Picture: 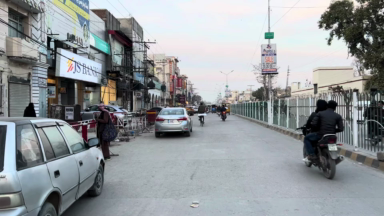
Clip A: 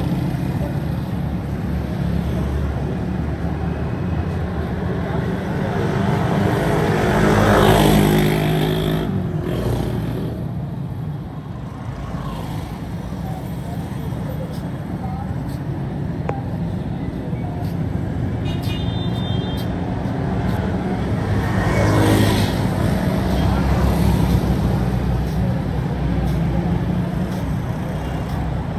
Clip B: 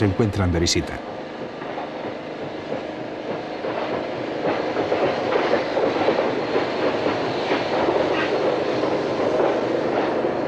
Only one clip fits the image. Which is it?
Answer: A